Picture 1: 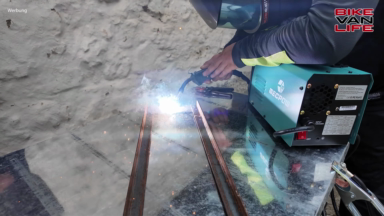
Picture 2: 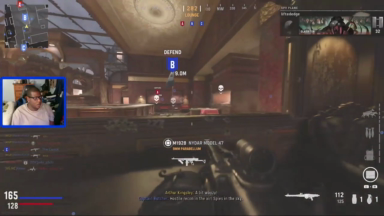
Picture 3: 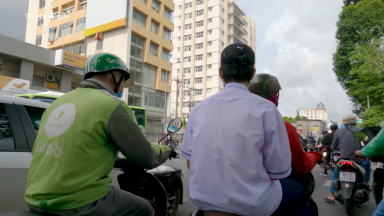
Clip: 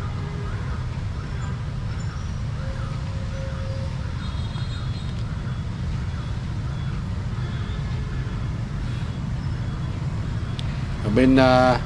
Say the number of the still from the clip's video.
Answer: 3